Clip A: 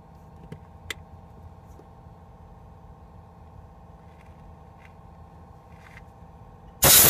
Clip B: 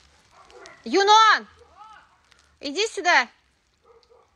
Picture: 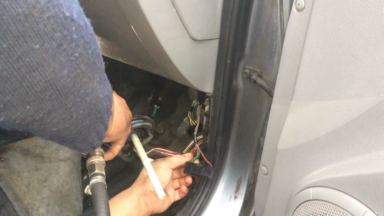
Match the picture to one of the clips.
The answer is A